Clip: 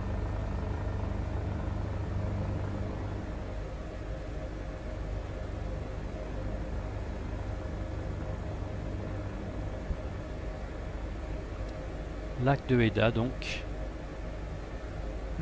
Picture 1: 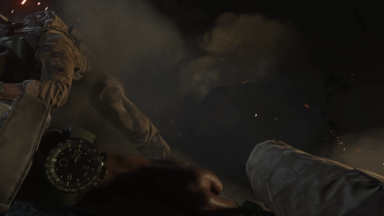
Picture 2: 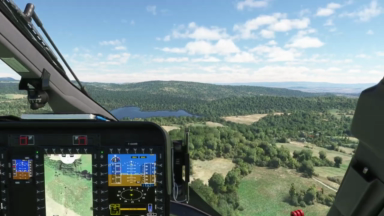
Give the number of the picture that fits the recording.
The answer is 2